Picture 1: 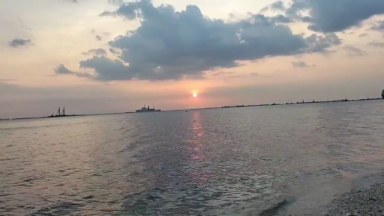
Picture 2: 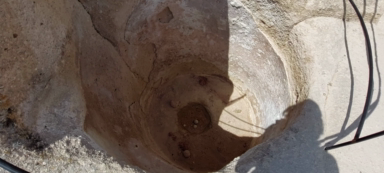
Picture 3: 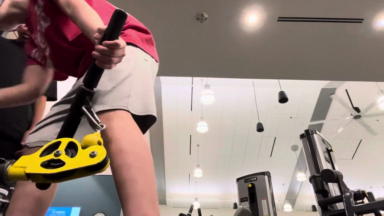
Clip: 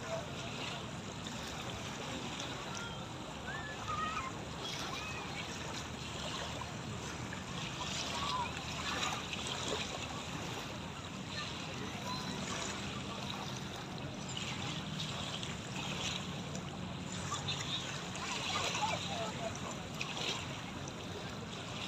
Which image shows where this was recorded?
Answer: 1